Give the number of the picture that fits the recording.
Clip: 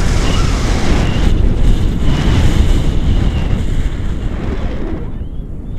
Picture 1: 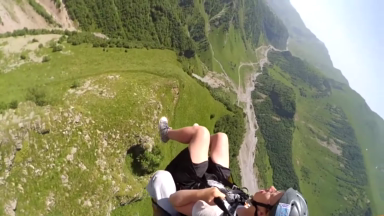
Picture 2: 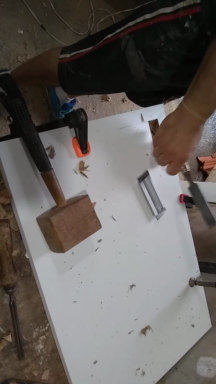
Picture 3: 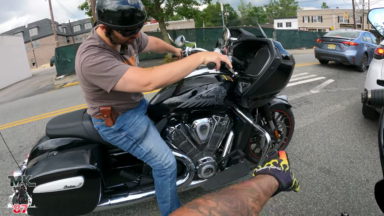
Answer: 1